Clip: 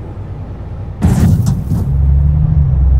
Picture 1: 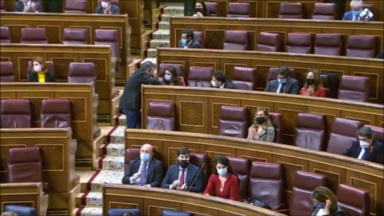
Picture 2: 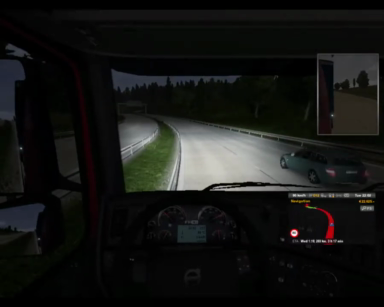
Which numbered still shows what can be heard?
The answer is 2